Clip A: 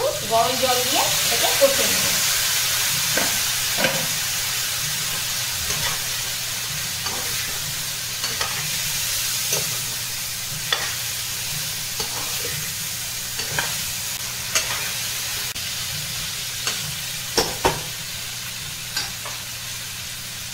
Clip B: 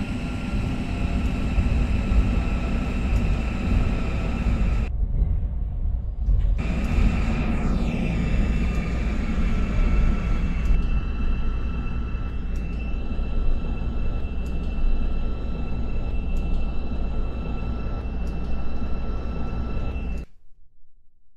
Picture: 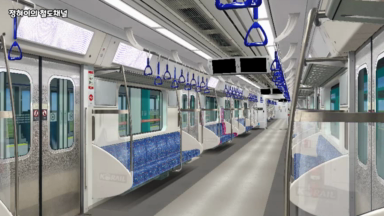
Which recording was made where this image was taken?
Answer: B